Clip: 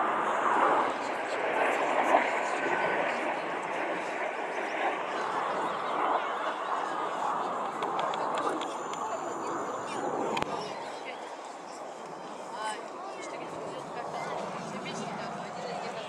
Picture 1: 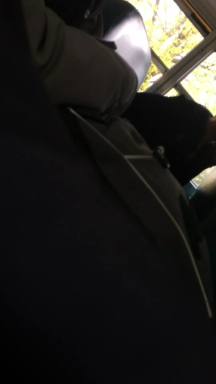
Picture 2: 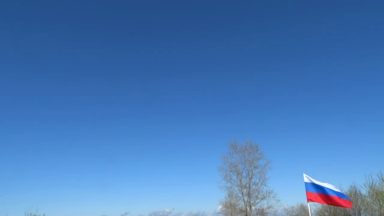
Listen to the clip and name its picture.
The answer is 2